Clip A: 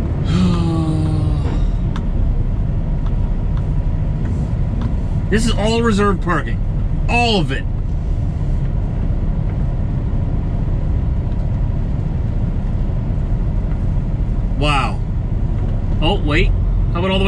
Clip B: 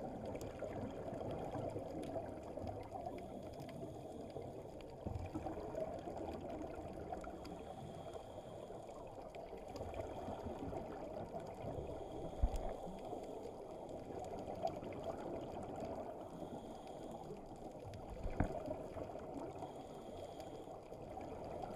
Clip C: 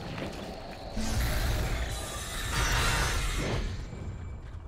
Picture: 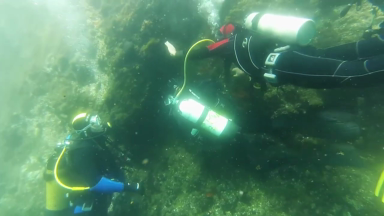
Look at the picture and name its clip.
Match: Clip B